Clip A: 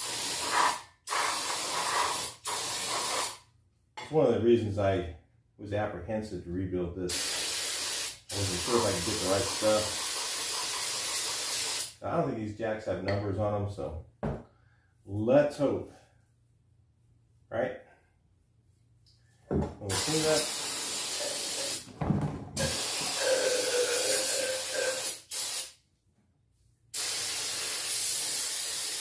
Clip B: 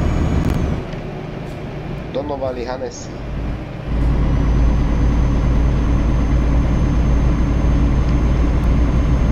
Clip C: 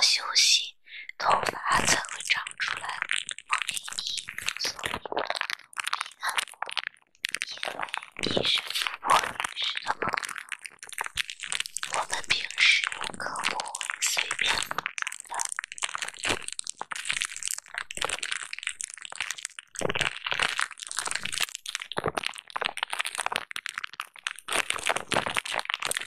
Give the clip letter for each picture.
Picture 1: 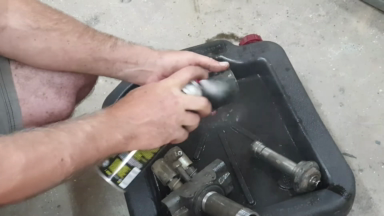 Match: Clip A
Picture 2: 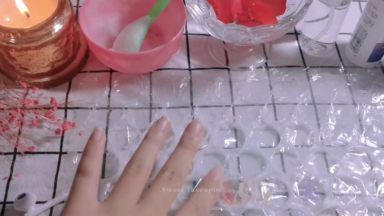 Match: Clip C